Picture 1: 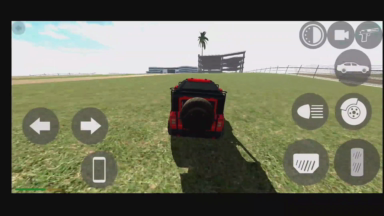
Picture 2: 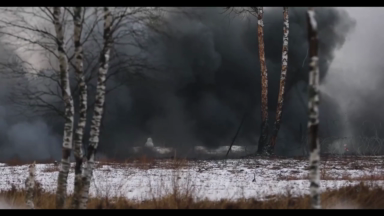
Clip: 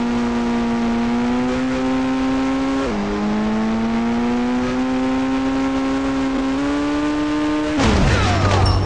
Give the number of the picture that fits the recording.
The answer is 1